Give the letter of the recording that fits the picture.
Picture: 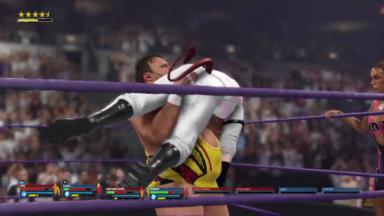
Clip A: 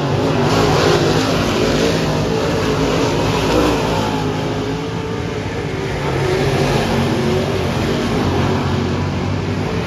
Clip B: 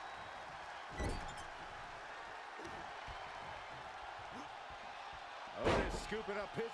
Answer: B